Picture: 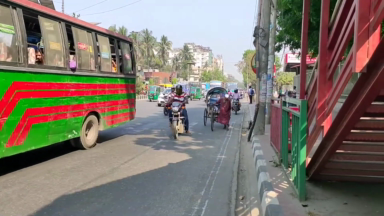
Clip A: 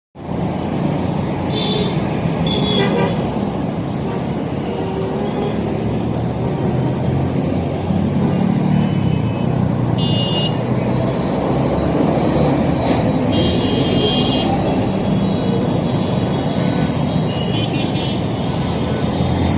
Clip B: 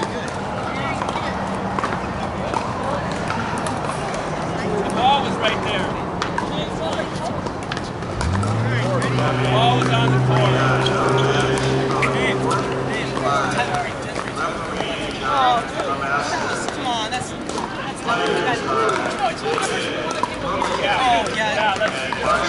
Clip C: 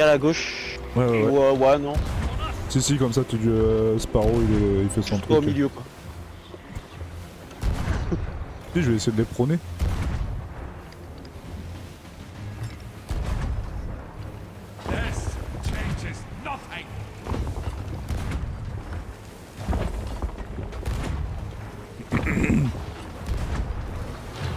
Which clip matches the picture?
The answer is A